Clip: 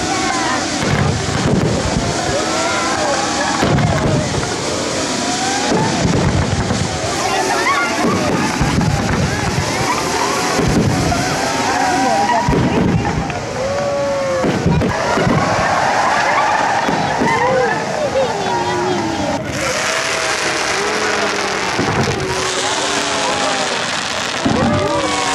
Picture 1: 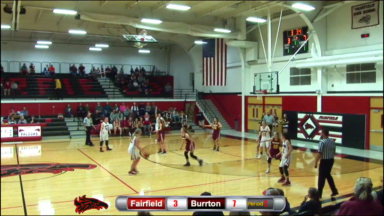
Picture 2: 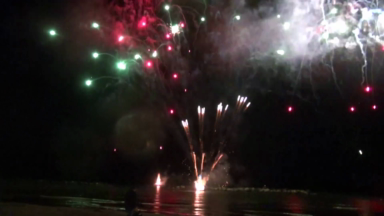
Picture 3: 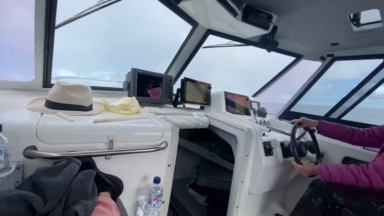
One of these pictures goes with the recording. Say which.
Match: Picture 2